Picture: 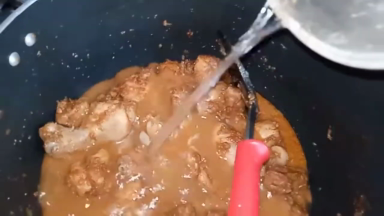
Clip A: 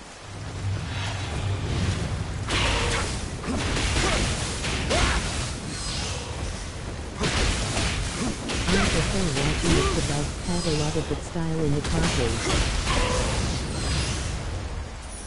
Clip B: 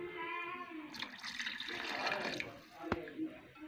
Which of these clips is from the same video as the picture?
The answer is B